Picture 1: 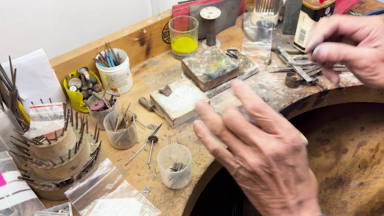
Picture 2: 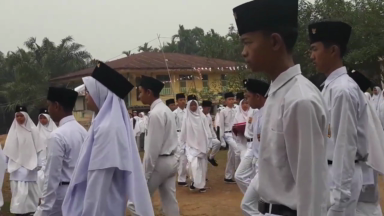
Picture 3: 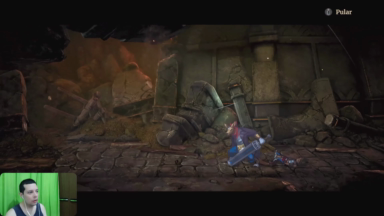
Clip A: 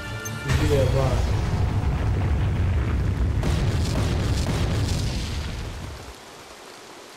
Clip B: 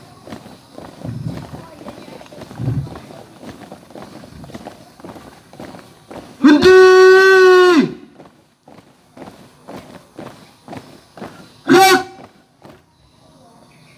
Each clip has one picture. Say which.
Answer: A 3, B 2